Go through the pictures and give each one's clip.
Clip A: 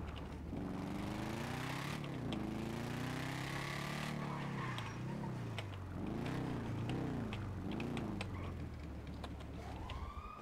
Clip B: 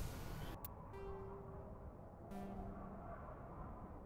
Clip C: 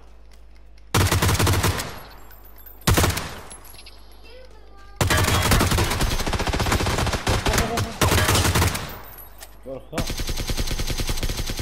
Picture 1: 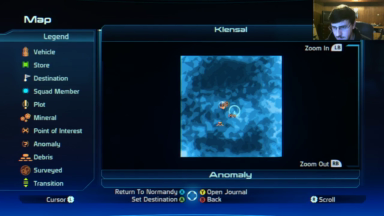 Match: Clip B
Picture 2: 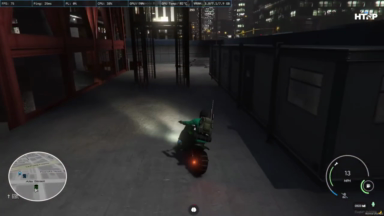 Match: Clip A